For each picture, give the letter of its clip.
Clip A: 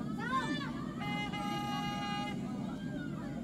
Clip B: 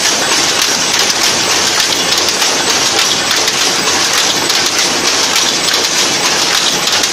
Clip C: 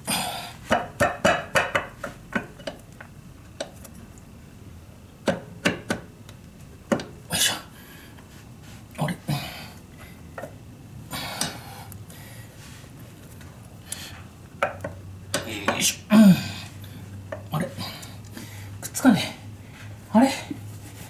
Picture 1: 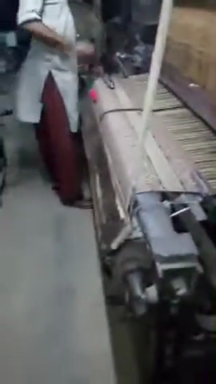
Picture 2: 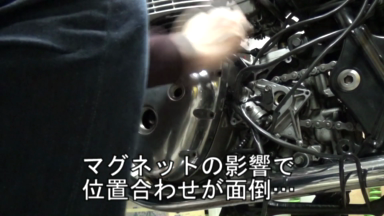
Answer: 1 B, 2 C